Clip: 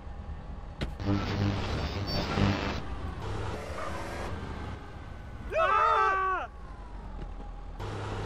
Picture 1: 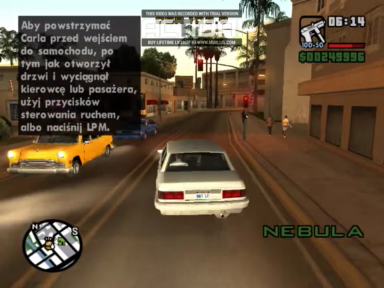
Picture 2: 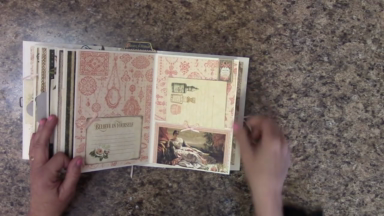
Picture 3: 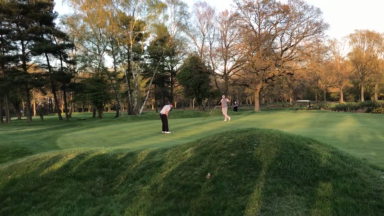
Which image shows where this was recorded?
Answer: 1